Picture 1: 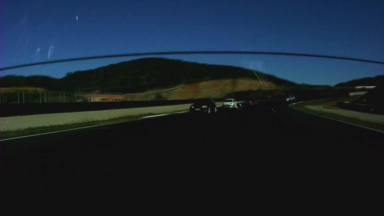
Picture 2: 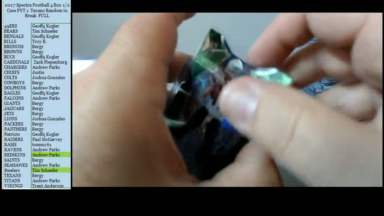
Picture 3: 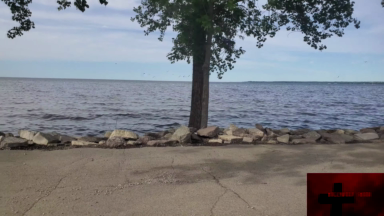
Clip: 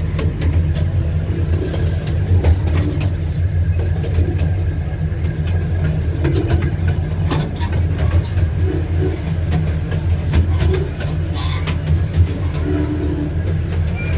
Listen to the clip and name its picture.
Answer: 3